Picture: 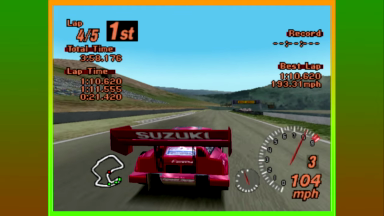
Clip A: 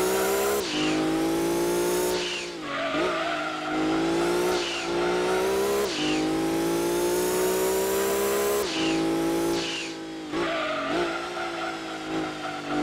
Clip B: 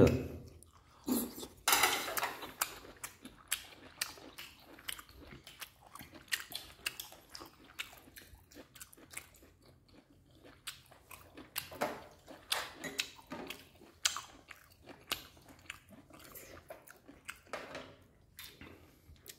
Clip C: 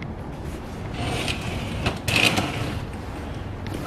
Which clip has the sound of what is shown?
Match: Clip A